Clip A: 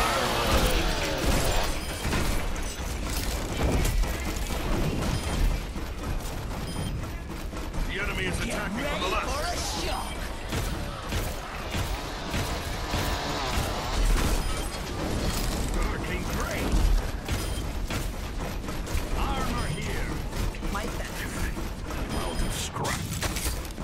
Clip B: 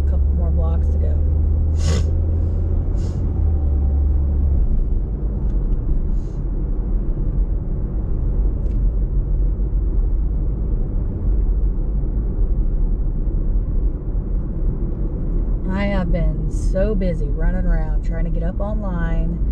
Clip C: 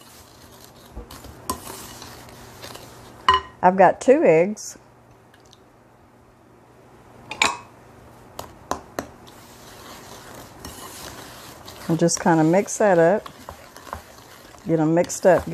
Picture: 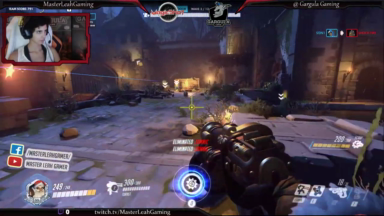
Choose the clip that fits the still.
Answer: A